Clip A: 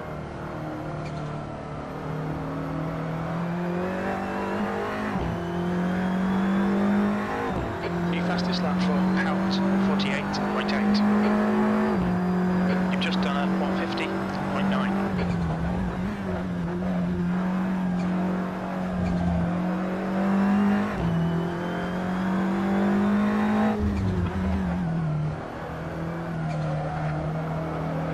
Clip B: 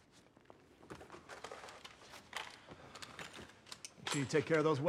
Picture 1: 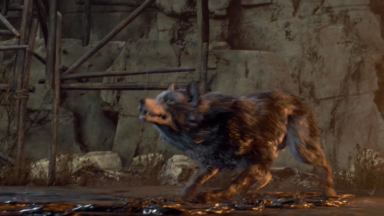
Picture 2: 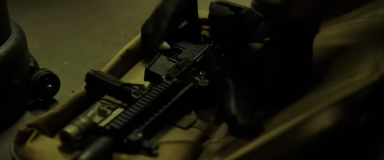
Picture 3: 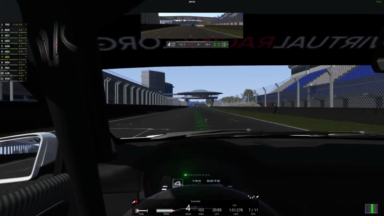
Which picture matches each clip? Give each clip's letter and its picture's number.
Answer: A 3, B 2